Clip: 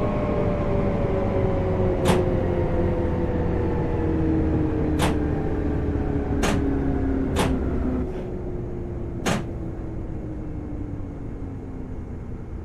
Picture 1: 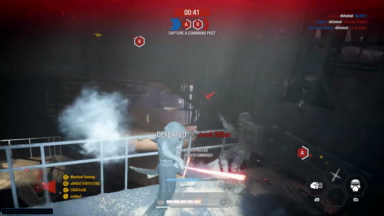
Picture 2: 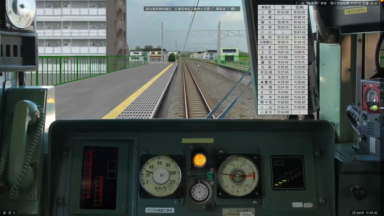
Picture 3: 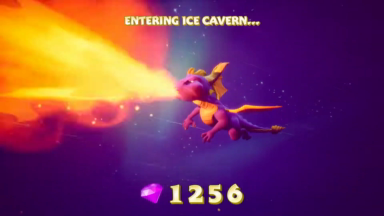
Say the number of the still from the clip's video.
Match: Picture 2